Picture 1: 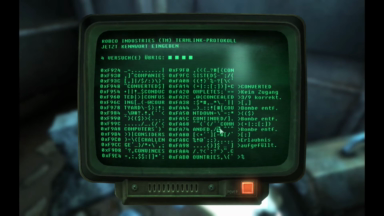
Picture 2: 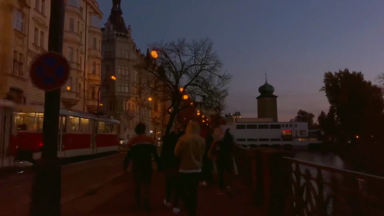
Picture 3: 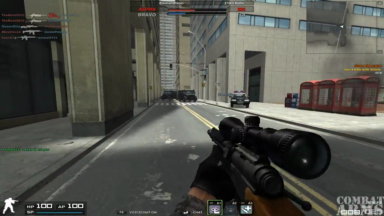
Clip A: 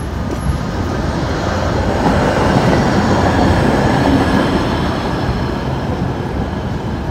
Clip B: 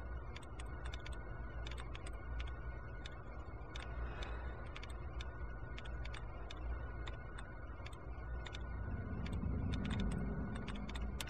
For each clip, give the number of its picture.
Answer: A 2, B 1